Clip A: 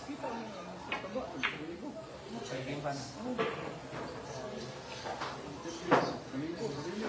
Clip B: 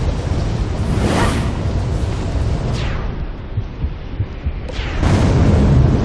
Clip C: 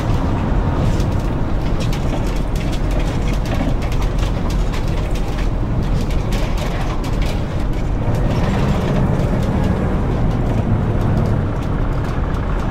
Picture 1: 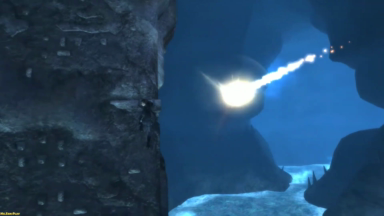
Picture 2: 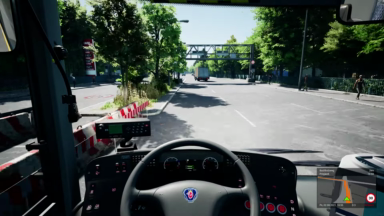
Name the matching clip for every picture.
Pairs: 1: B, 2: C